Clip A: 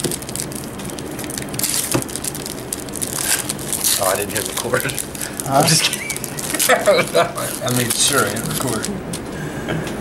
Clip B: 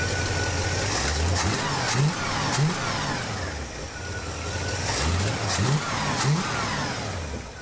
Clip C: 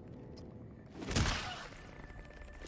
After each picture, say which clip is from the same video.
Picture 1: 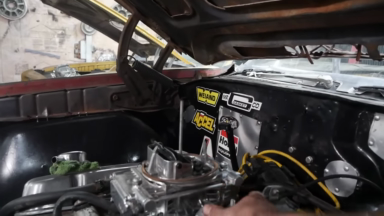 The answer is B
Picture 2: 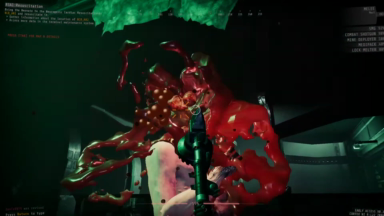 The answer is C